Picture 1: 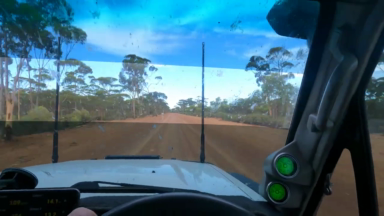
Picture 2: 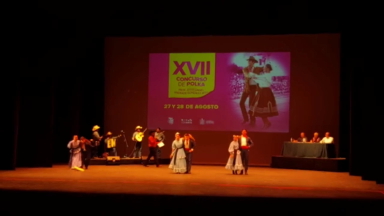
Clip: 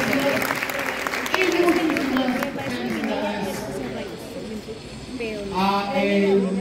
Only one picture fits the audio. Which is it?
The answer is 2